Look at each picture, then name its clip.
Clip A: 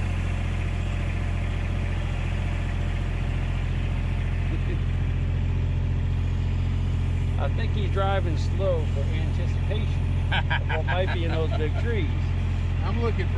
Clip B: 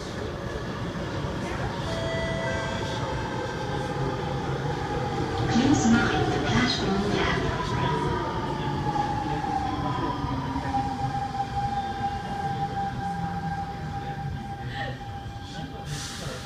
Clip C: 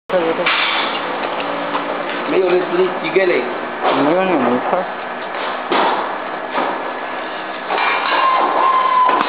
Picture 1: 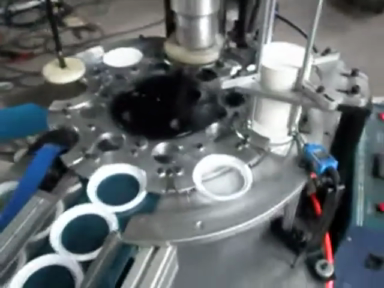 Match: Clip C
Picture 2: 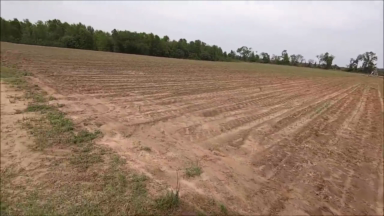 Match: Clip A